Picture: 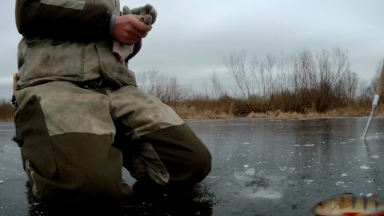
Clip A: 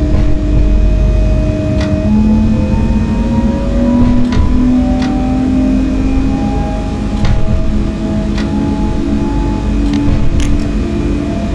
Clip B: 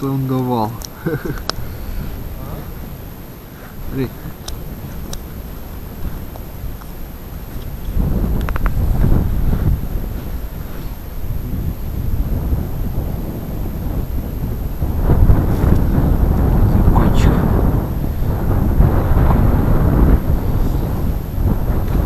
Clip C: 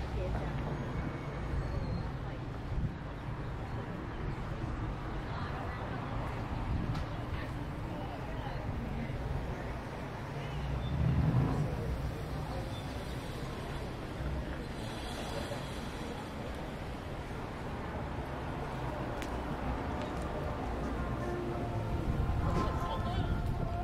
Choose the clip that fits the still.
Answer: B